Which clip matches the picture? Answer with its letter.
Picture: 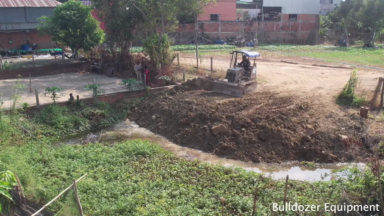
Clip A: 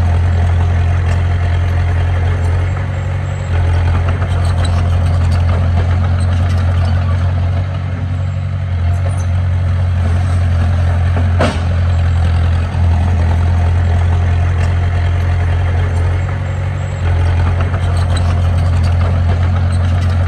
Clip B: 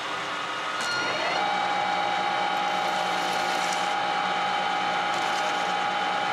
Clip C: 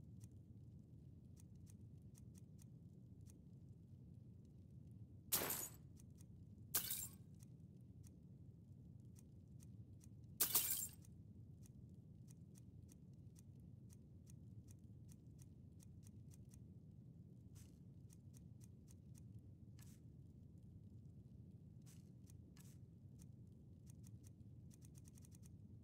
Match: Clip A